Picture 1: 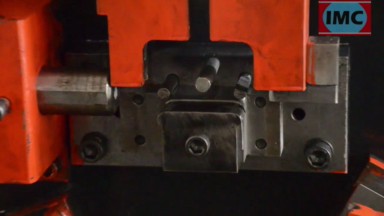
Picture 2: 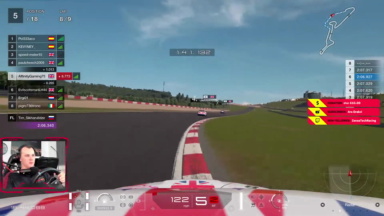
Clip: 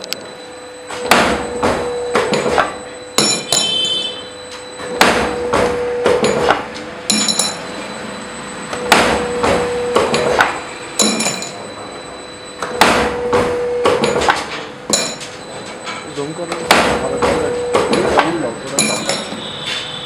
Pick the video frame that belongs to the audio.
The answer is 1